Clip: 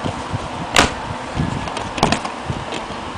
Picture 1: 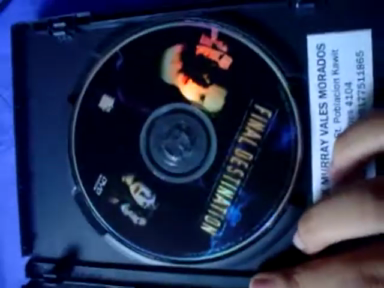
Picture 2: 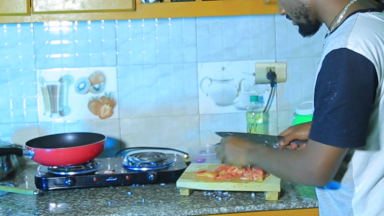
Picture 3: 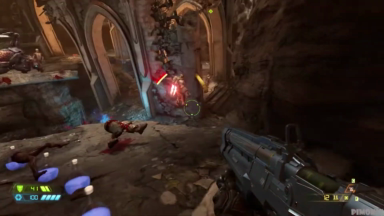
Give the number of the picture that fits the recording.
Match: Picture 1